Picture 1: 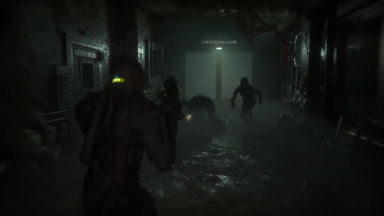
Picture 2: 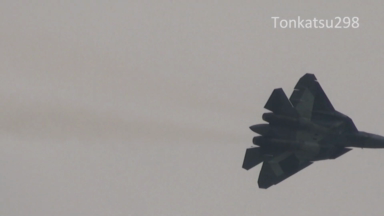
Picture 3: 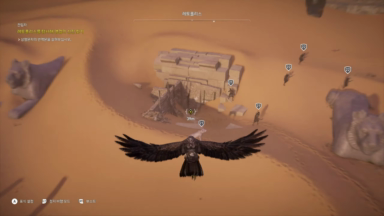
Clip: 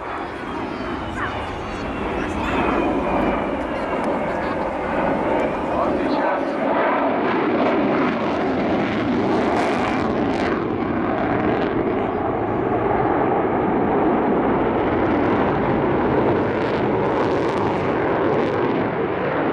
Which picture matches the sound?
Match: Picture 2